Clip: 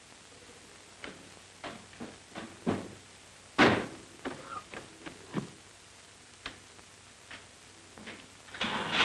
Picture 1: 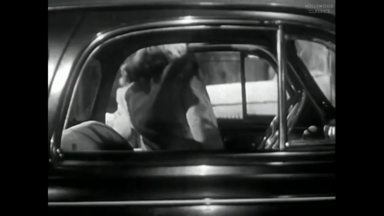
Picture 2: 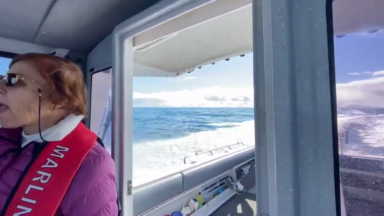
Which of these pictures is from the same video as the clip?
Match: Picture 1